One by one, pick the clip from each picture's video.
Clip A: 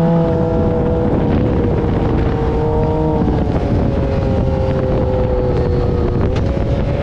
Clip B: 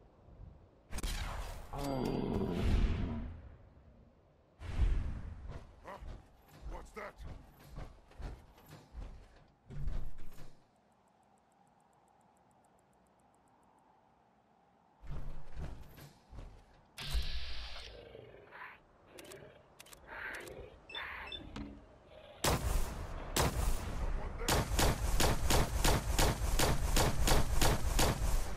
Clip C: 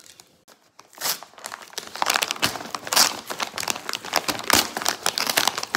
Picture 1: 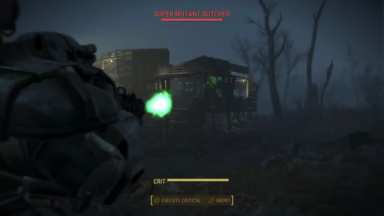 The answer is B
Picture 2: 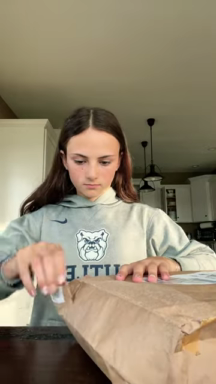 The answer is C